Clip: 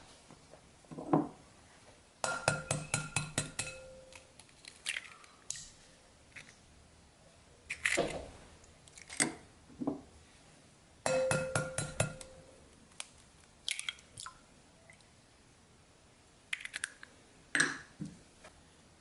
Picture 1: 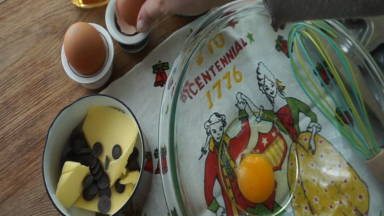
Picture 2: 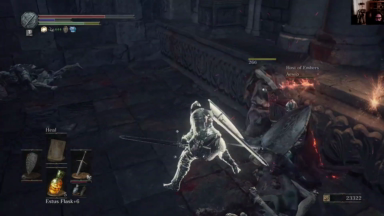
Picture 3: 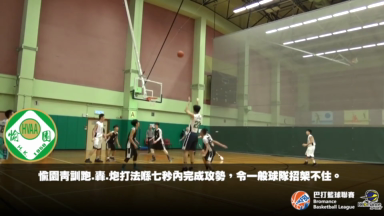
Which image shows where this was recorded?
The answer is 1